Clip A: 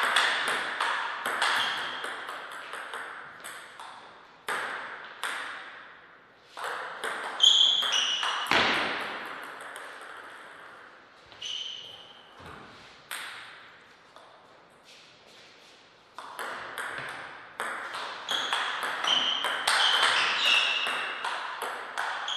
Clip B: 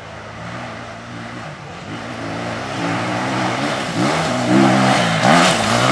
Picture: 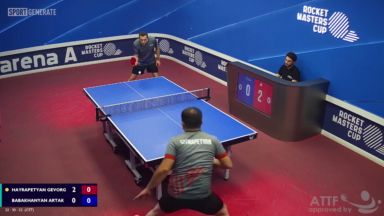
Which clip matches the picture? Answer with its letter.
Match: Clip A